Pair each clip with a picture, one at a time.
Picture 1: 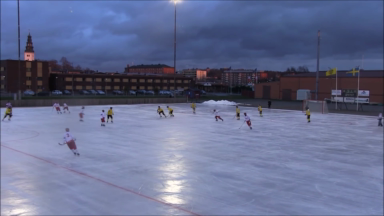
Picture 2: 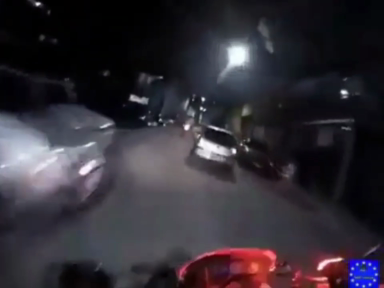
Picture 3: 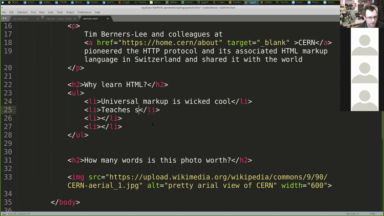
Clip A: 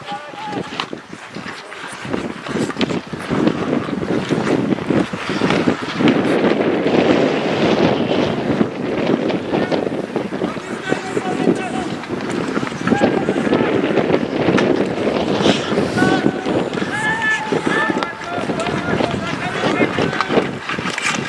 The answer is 1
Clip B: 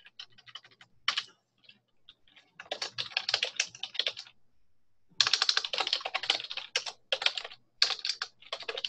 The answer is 3